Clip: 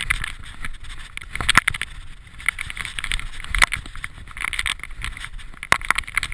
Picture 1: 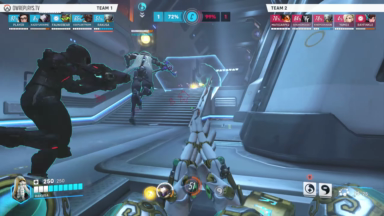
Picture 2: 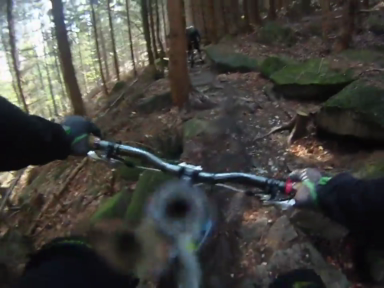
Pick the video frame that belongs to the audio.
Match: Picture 2